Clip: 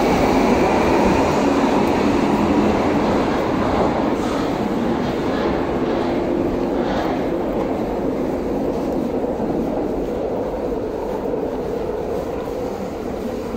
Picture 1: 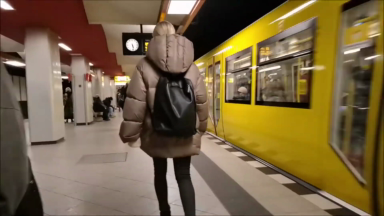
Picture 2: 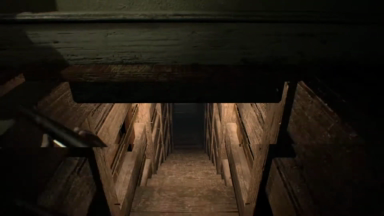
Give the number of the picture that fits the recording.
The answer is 1